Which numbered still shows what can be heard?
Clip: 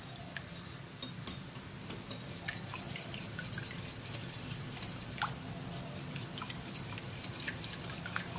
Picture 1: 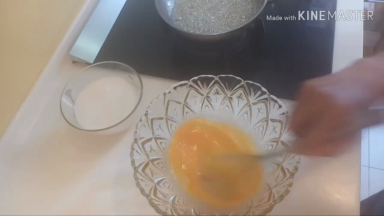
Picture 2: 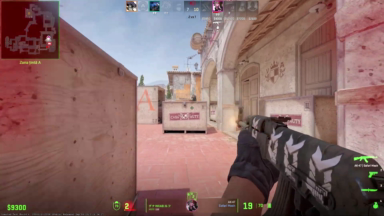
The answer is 1